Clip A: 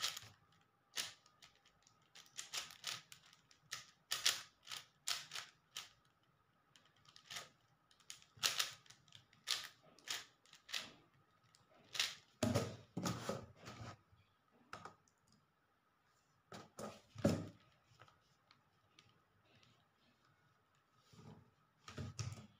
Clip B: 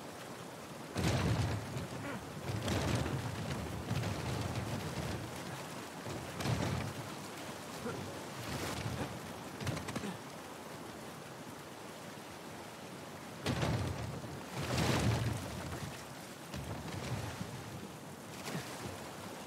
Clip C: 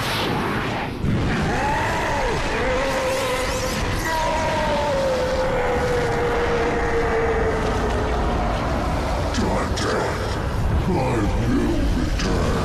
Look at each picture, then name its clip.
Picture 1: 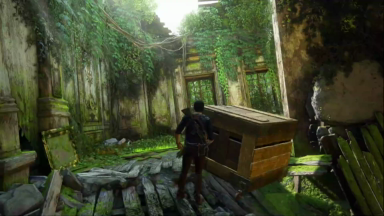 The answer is B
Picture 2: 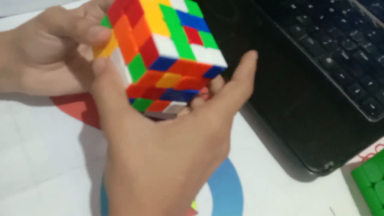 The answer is A